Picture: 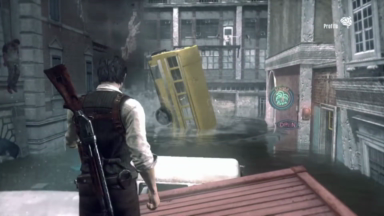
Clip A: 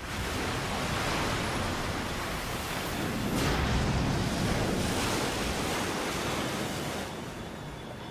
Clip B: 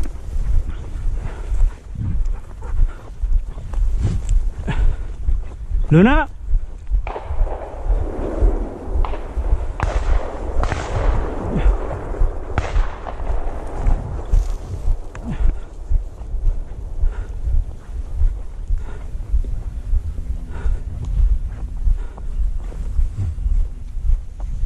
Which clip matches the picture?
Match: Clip A